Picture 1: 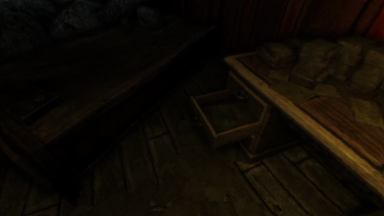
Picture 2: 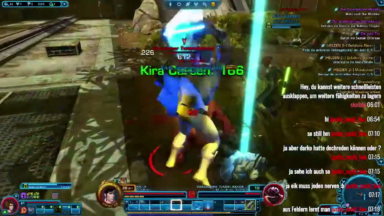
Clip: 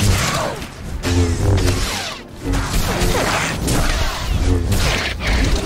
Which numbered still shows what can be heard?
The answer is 2